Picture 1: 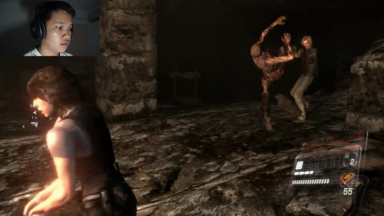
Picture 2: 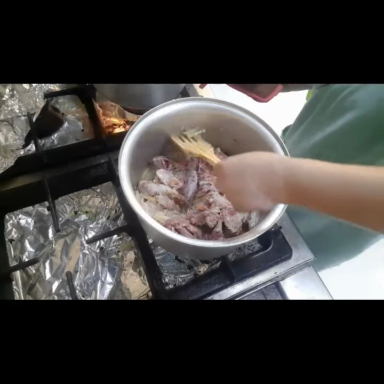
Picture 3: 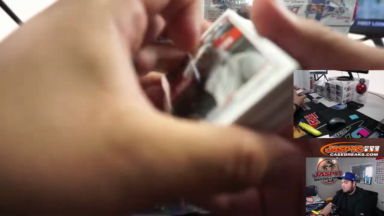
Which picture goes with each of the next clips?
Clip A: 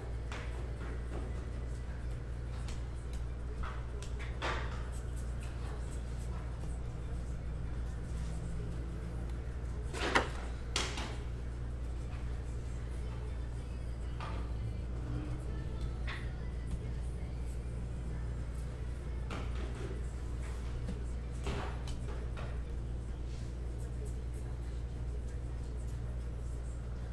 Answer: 3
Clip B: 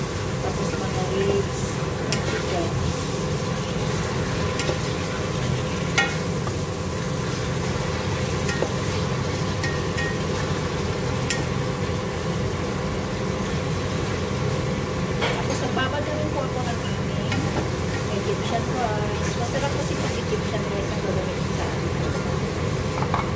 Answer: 2